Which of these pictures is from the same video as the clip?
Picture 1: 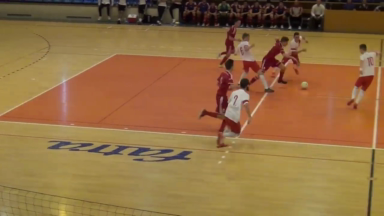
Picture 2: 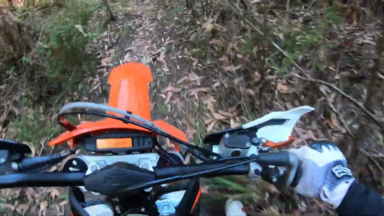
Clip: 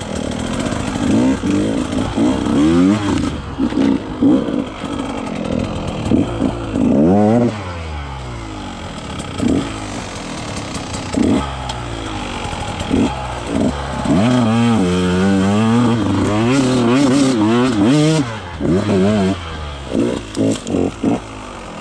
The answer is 2